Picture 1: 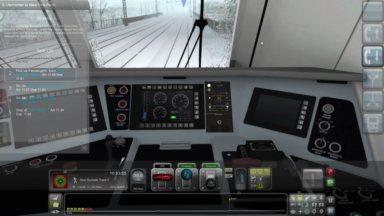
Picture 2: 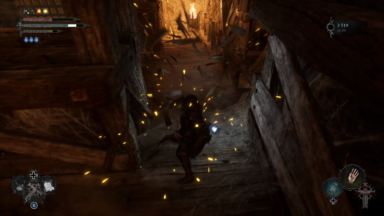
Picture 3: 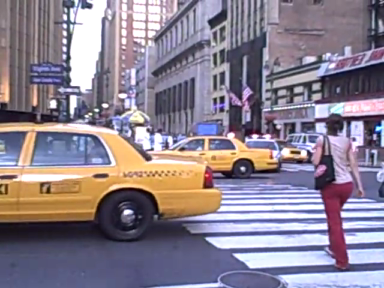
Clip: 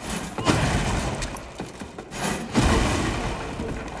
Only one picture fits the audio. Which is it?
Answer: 2